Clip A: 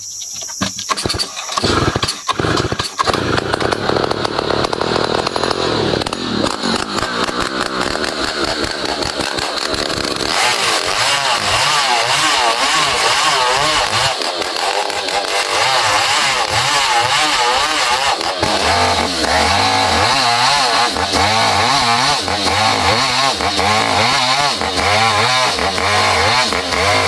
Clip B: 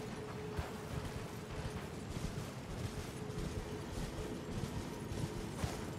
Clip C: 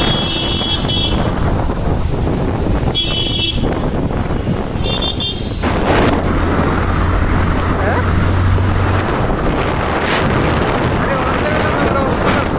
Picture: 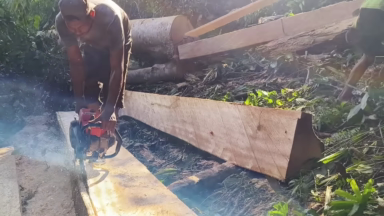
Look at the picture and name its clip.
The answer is A